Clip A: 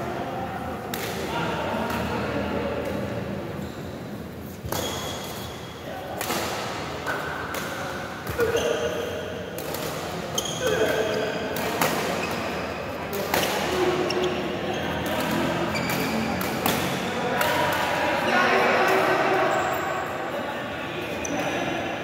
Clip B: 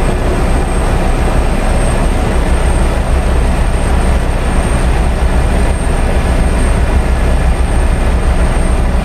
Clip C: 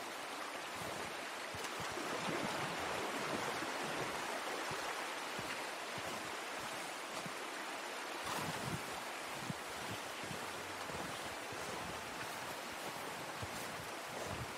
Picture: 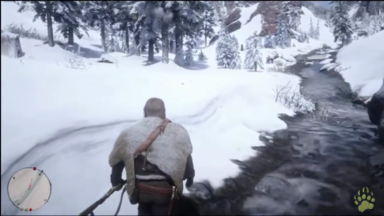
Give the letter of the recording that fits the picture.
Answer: C